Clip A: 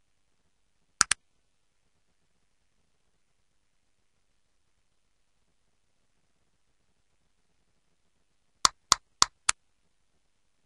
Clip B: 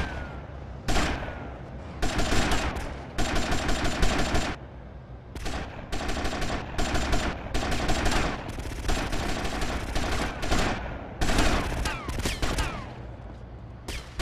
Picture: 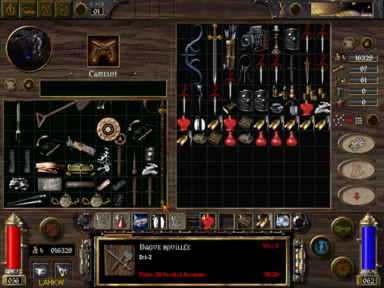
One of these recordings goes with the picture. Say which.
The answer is A